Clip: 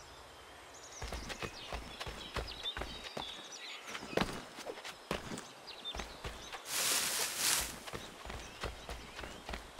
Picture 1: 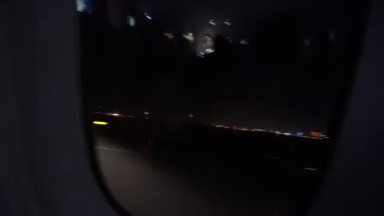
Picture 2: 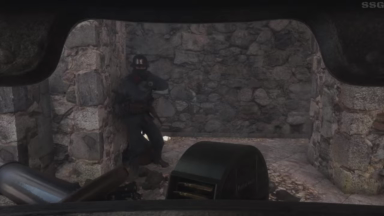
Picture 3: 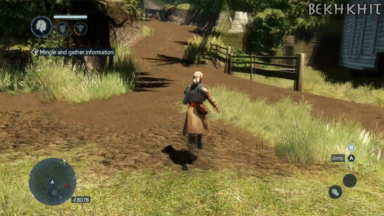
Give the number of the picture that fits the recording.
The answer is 3